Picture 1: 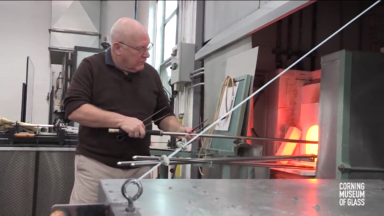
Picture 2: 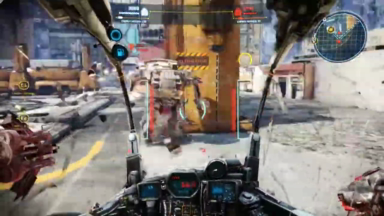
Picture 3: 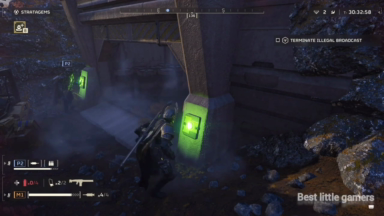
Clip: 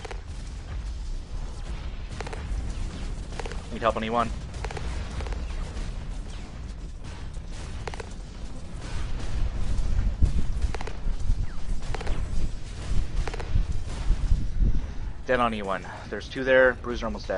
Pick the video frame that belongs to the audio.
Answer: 2